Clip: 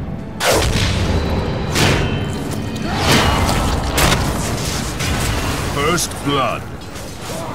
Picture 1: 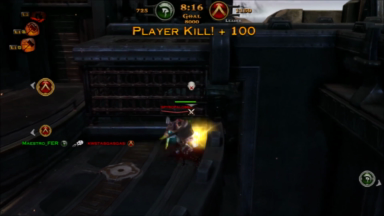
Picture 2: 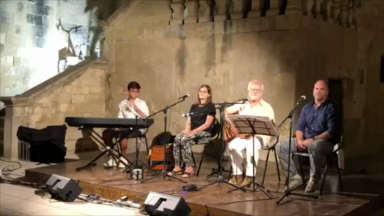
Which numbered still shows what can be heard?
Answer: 1